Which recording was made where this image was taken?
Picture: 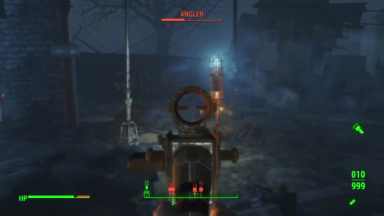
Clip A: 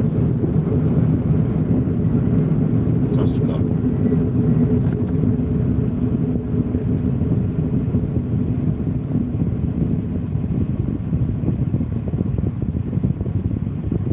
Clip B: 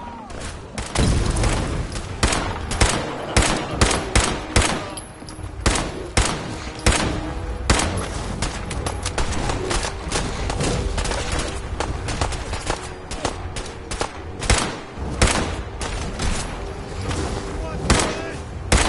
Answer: B